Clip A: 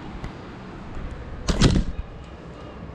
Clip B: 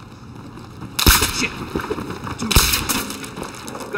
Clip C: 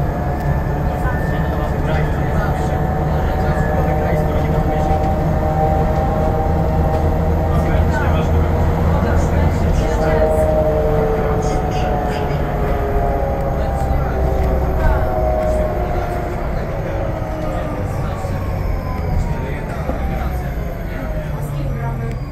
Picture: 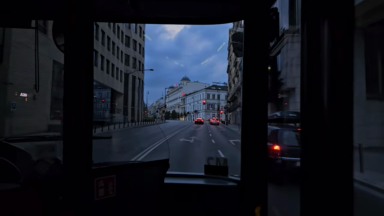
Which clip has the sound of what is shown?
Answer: C